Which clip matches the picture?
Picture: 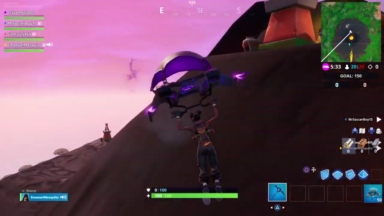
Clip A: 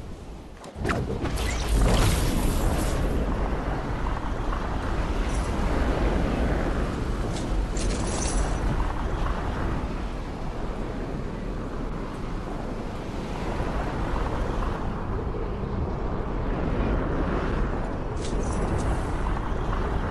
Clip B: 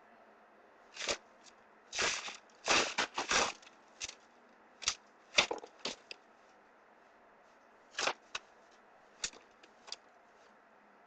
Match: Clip A